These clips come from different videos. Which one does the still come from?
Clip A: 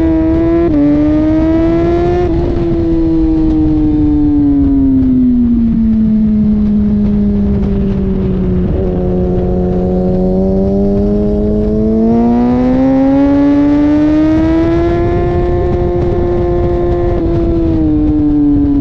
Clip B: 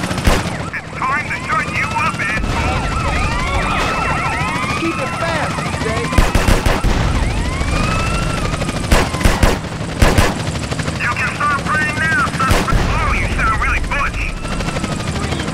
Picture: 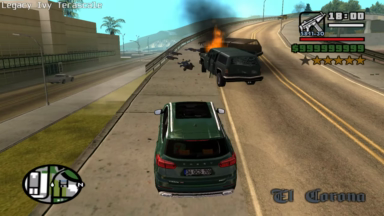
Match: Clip B